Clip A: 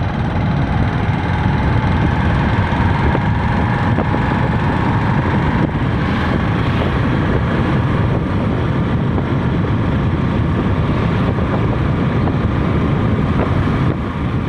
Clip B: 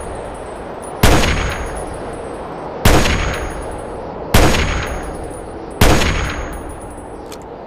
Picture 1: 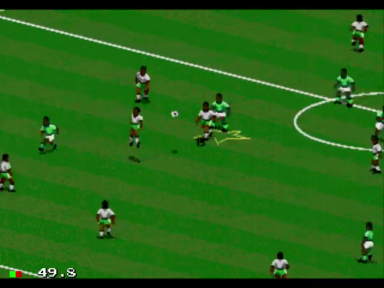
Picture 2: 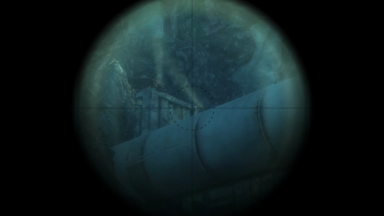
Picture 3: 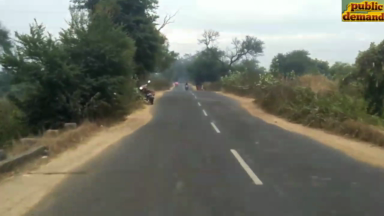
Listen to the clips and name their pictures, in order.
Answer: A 3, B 2